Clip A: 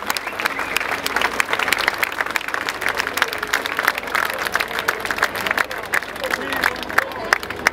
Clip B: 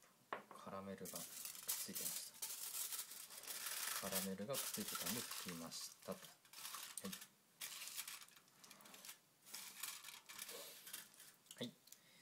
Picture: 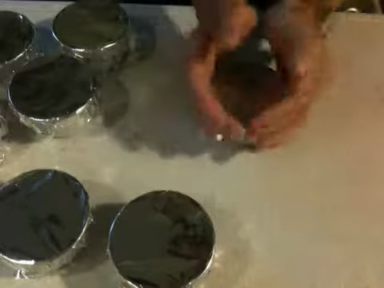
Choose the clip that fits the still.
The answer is B